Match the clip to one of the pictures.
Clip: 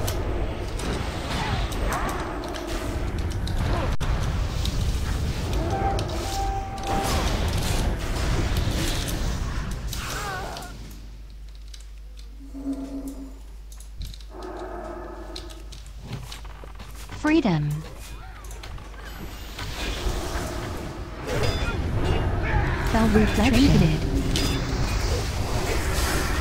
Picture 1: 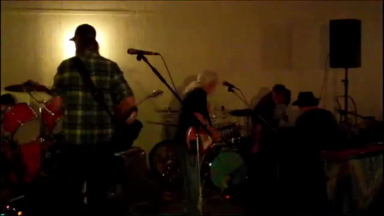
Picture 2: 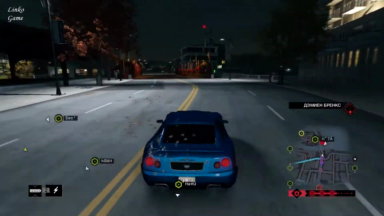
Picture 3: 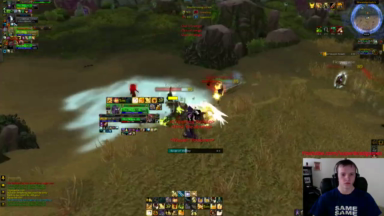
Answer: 3